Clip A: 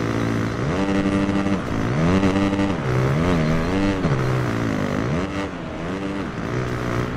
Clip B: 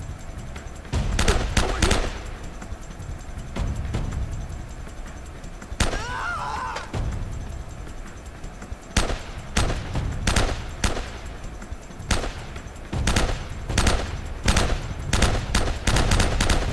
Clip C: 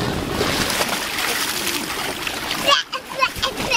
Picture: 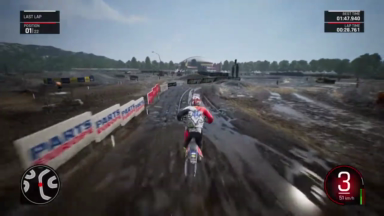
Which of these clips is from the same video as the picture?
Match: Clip A